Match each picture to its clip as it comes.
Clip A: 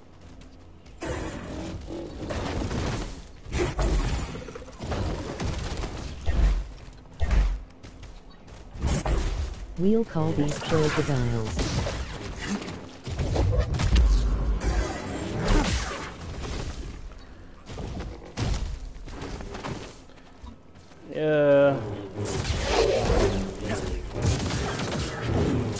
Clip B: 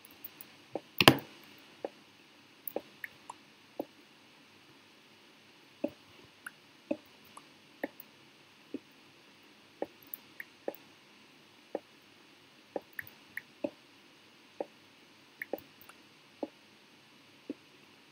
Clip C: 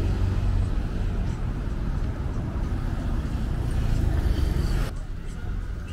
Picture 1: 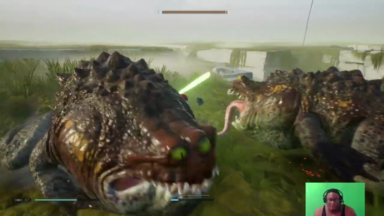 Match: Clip A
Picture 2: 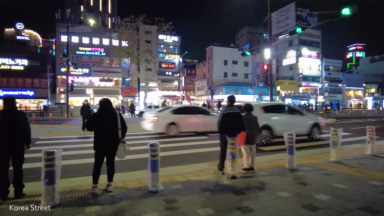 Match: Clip C